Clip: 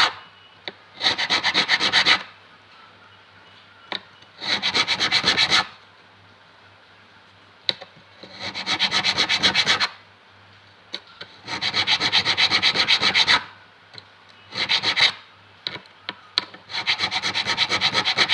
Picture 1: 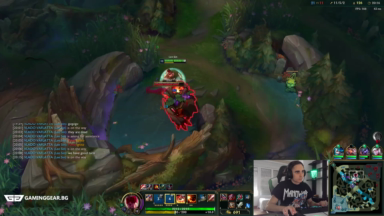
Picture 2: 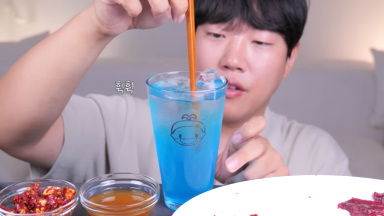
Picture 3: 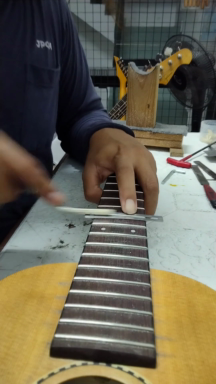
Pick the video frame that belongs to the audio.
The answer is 3